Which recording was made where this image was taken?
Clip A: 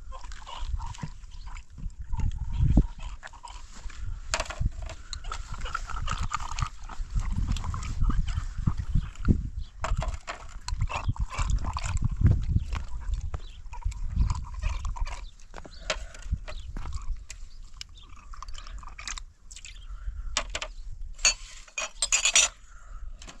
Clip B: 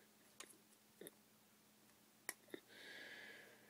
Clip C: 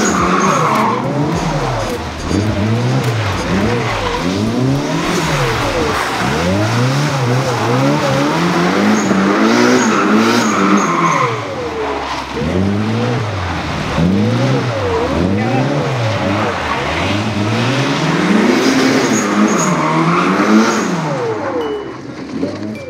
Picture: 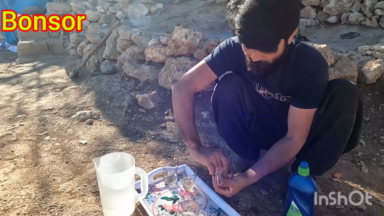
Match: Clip A